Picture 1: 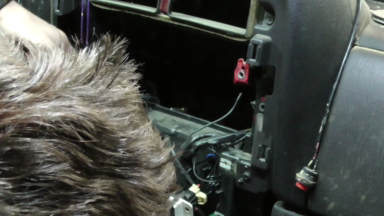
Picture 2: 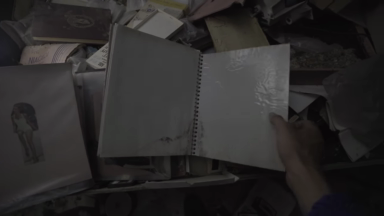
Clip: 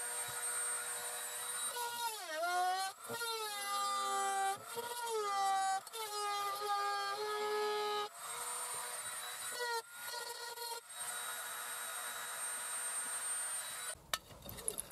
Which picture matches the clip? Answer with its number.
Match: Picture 1